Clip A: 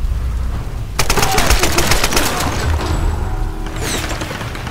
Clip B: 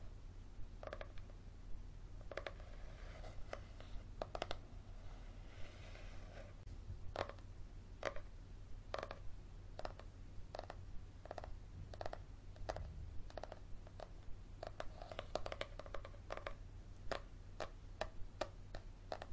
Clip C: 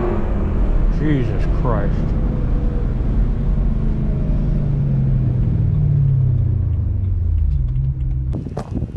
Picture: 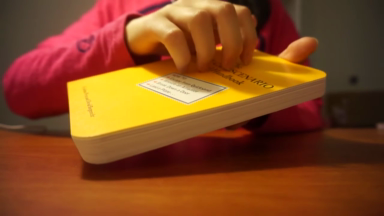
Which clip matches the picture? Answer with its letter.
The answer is B